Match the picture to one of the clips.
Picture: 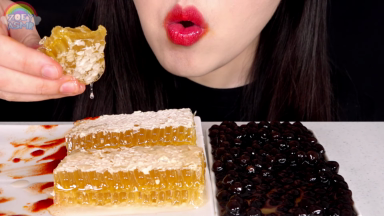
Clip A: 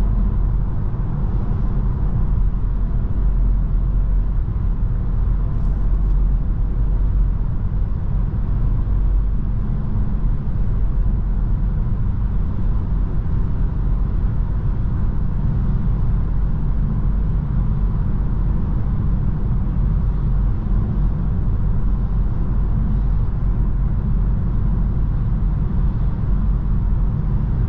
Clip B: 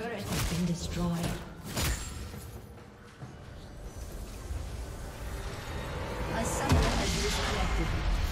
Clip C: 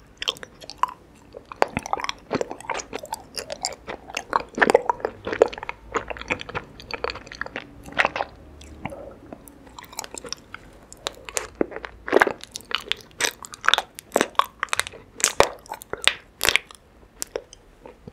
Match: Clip C